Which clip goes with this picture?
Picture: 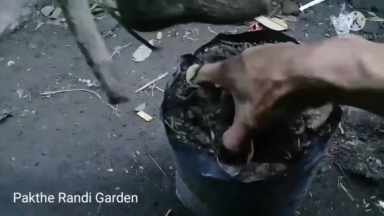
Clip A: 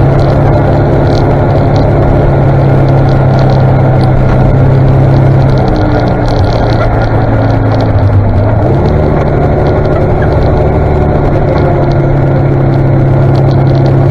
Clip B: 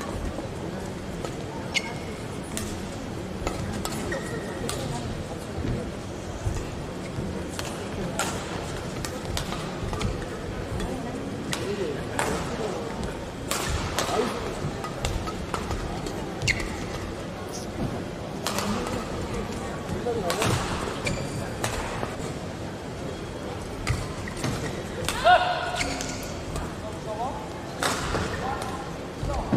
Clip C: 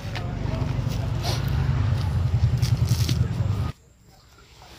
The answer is C